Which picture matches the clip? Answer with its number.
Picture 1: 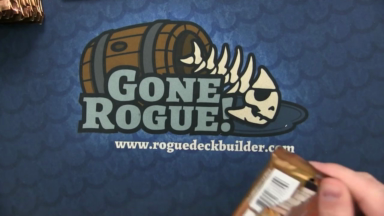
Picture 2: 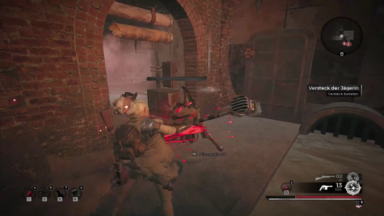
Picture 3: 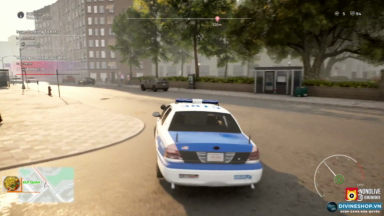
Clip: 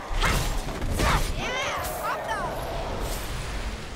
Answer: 2